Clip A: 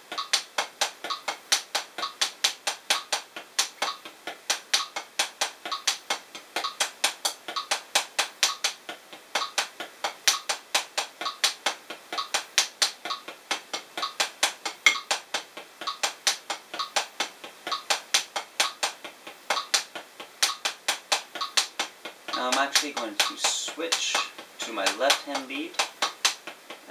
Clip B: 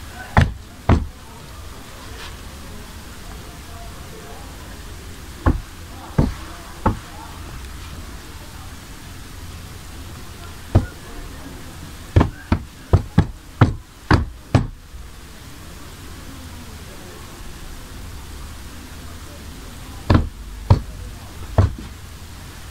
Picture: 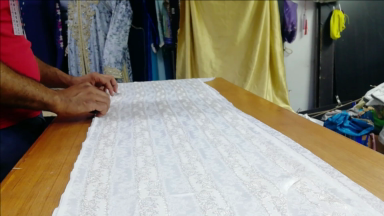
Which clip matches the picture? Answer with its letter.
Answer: B